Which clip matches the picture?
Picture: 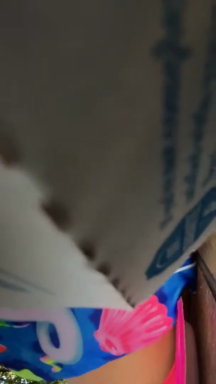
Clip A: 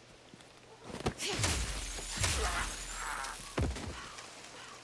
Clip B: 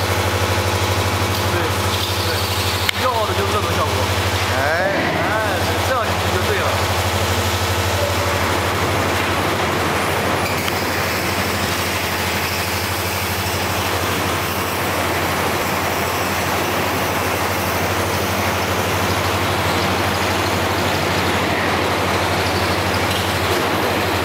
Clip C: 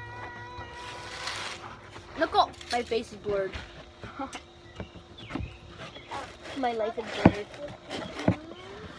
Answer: C